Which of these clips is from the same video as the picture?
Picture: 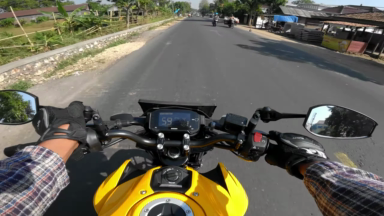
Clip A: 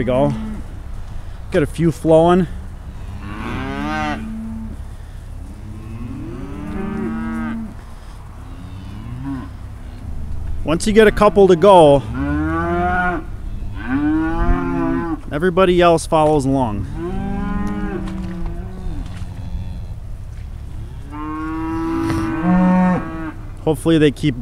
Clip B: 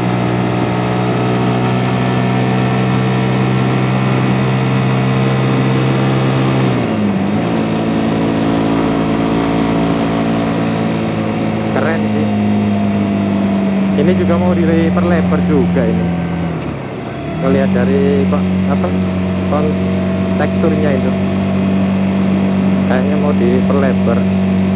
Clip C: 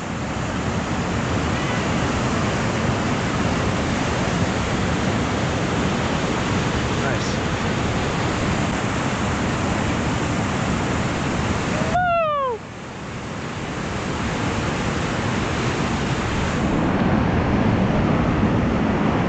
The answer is B